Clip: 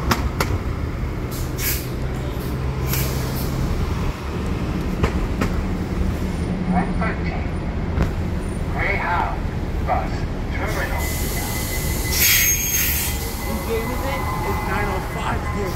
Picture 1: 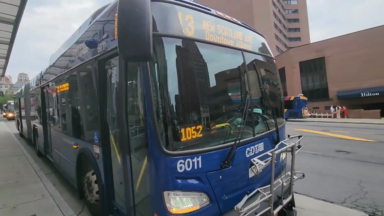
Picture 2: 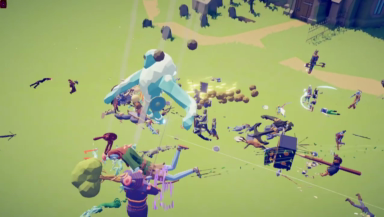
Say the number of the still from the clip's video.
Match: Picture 1